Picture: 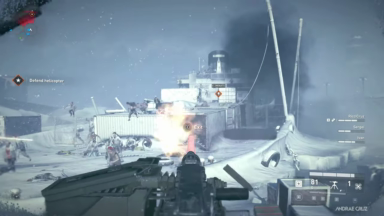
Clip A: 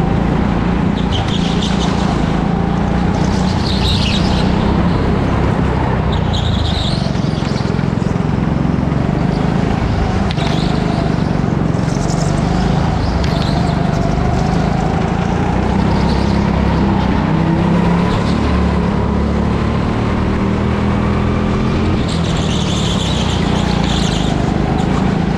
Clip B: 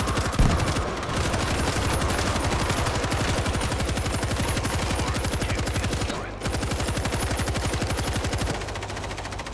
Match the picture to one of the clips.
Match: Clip B